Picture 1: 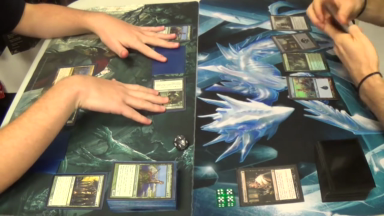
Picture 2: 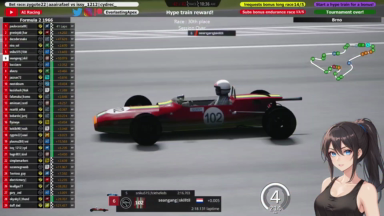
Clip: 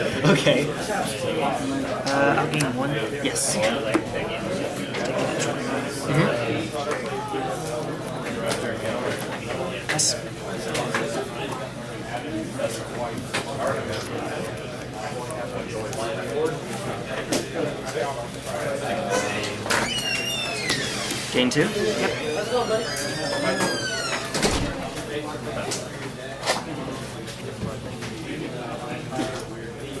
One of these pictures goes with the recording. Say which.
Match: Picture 1